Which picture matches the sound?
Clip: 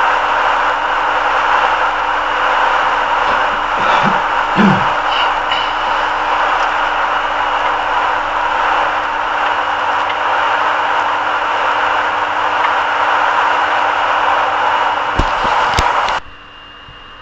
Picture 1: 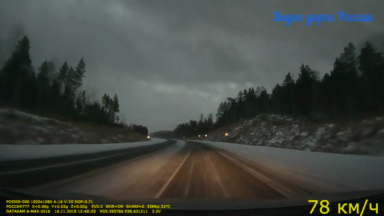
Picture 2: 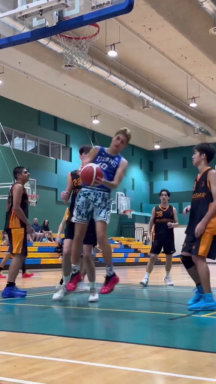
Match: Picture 1